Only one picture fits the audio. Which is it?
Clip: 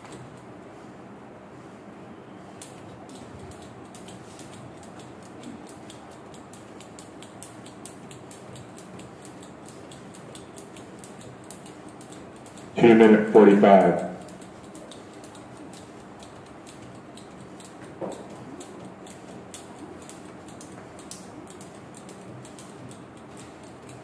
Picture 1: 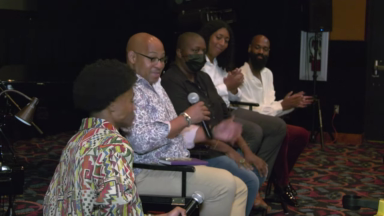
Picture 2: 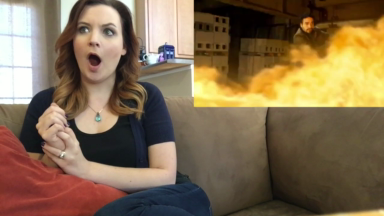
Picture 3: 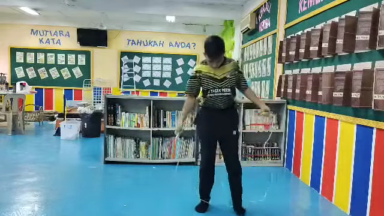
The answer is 3